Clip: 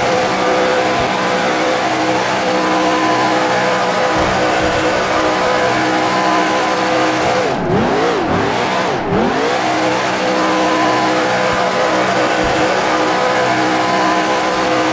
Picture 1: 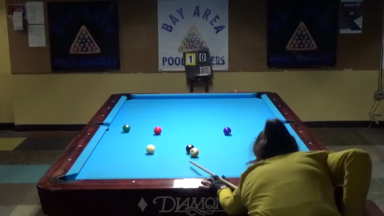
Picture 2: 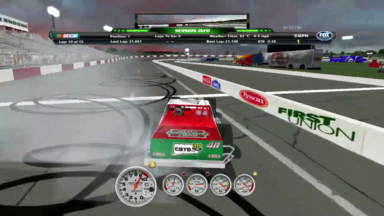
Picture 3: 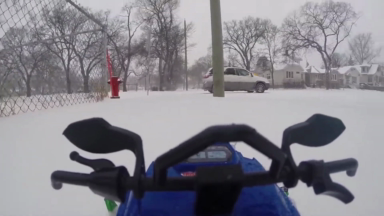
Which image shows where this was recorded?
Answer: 2